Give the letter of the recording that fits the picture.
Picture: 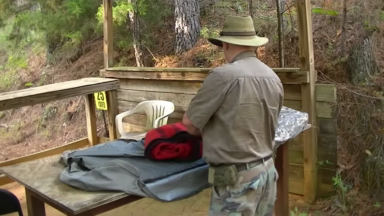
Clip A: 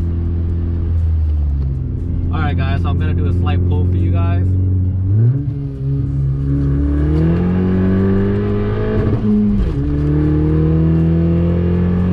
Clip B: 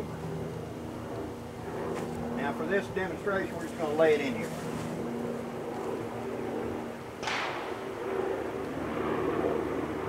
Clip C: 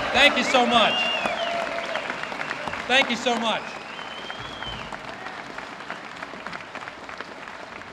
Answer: B